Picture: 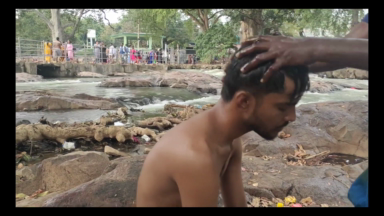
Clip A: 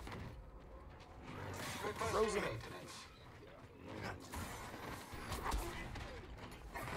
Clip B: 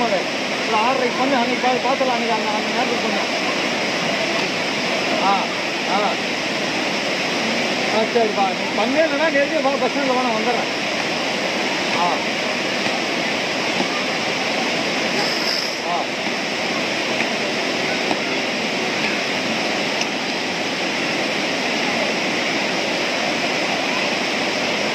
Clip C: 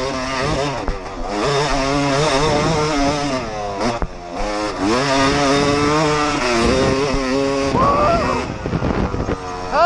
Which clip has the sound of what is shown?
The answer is B